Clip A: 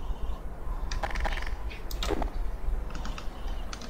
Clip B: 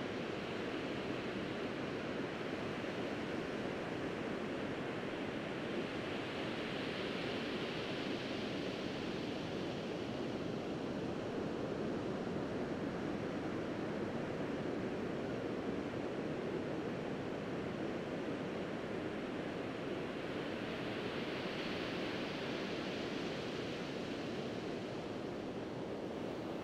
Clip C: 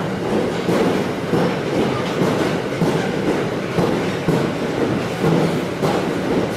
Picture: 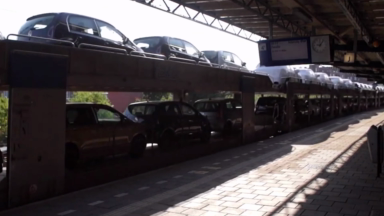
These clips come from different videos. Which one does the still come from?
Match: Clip C